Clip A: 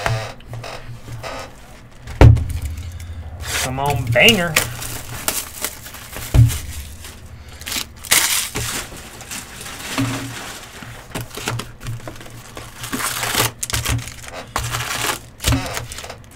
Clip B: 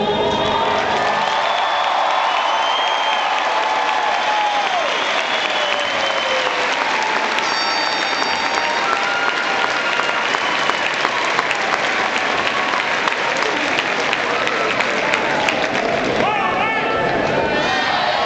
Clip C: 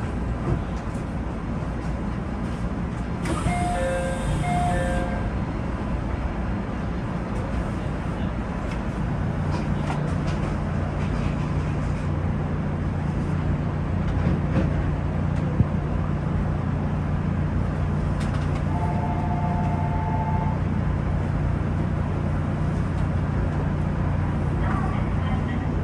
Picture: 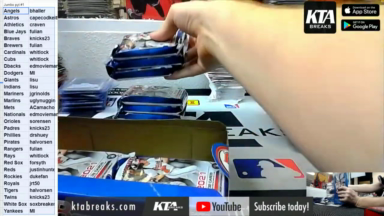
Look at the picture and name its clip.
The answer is A